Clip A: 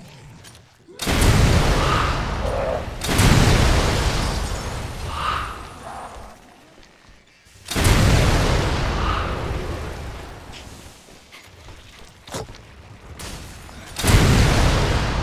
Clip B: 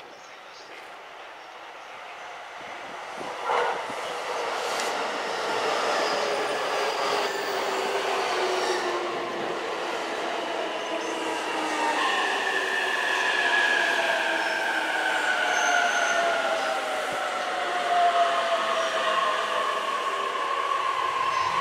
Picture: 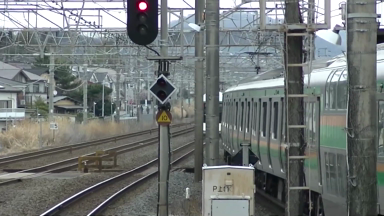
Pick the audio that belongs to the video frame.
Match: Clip B